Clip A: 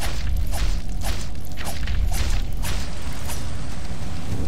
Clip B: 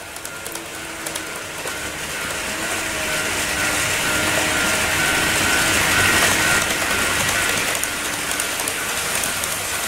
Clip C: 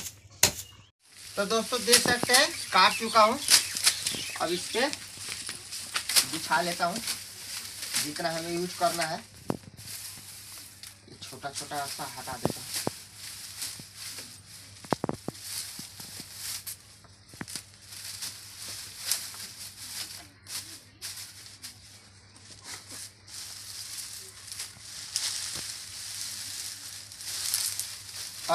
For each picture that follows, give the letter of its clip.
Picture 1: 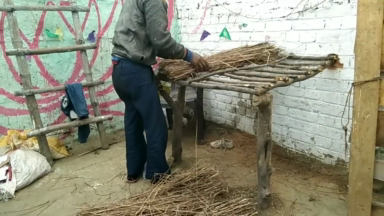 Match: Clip C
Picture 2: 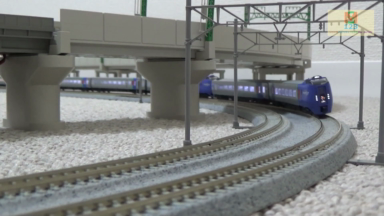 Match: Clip B